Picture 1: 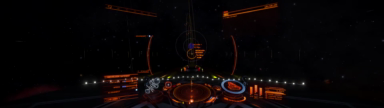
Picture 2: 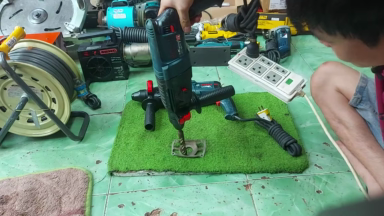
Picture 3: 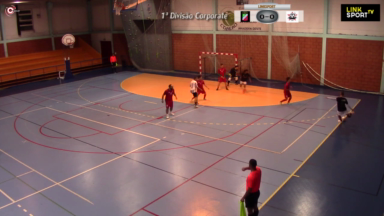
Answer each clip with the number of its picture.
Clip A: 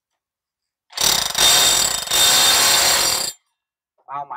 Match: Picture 2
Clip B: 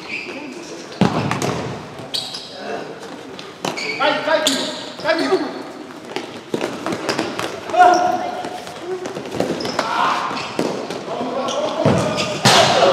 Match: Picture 3